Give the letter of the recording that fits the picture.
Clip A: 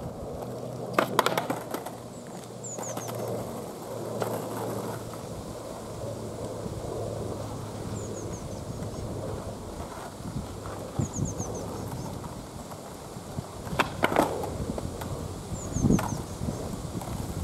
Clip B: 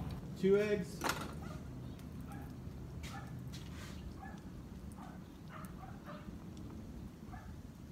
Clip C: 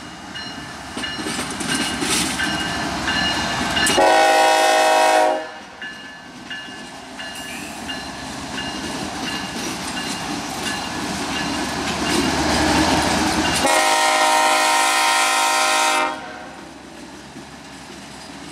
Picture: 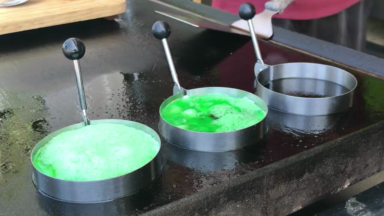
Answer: B